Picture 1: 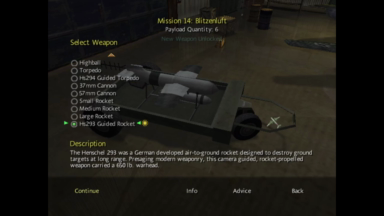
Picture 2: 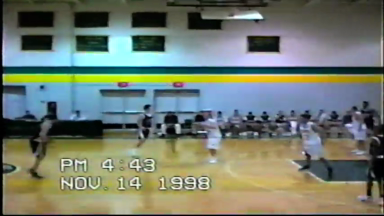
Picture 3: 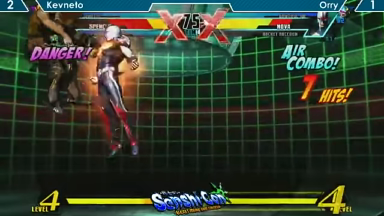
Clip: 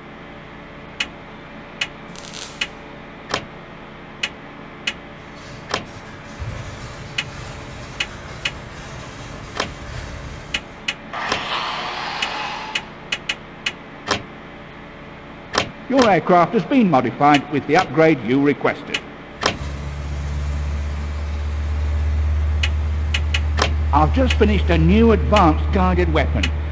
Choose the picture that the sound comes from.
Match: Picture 1